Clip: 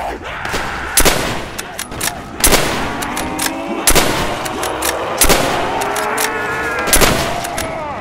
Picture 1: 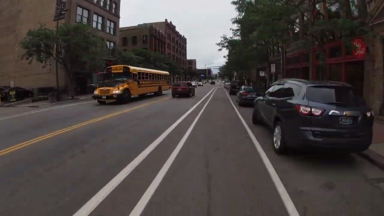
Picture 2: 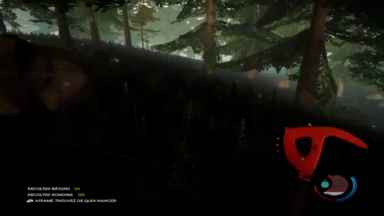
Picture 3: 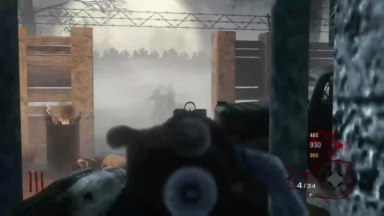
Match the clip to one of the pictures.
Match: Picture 3